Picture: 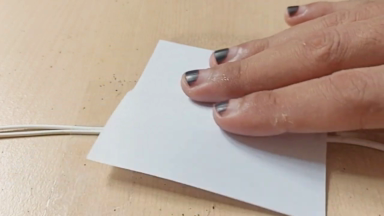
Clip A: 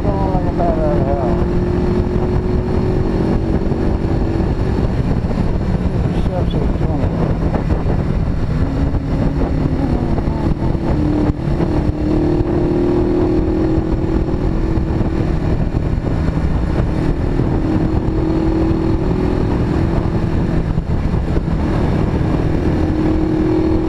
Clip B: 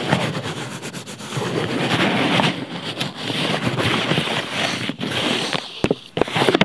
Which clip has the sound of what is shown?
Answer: B